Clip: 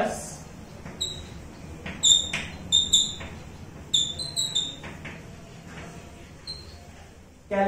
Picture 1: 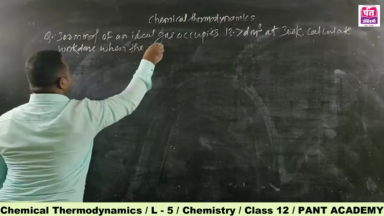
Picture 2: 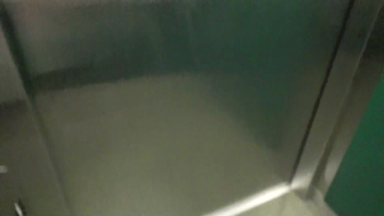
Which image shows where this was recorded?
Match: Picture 1